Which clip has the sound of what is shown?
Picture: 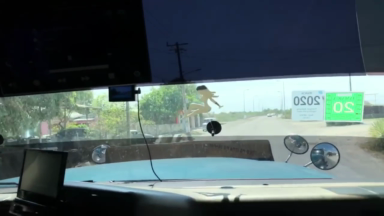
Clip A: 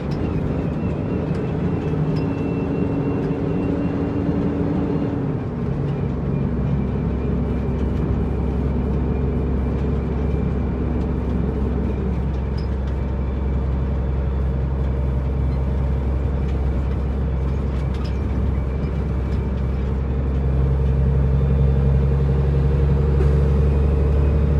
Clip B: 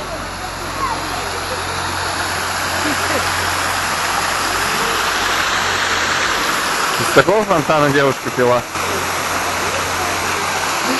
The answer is A